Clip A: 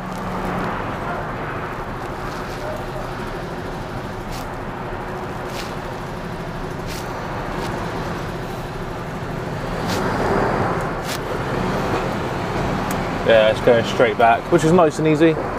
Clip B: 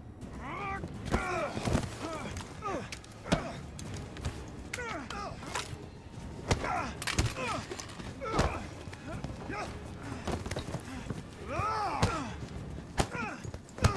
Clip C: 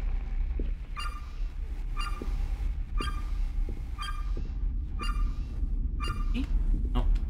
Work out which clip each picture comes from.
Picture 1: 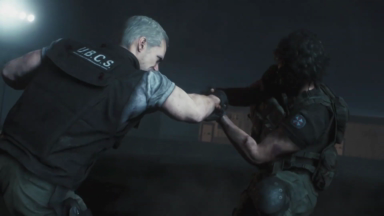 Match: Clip B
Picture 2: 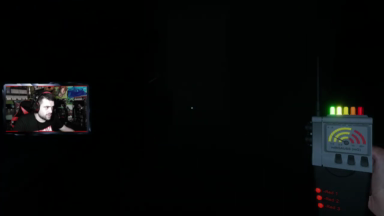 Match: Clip C